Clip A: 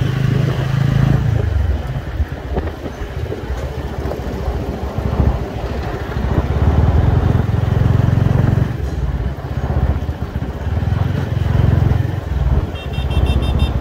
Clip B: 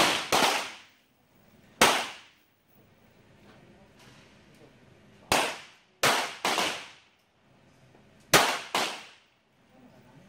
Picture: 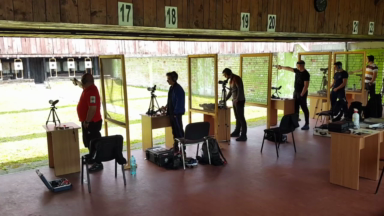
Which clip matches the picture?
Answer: B